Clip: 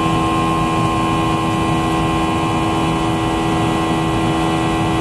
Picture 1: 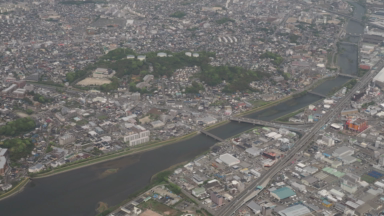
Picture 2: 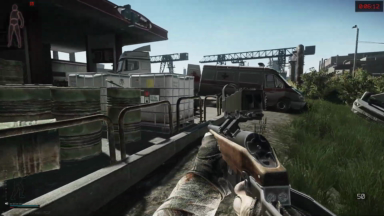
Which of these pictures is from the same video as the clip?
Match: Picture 1